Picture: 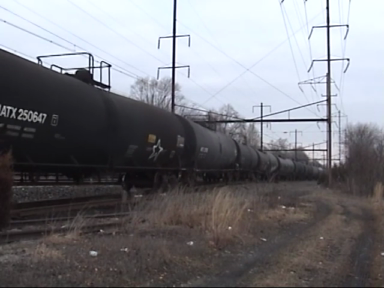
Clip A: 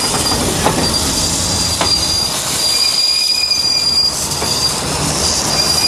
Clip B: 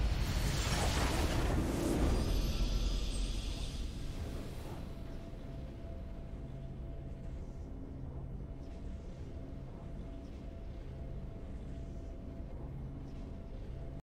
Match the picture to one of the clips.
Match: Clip A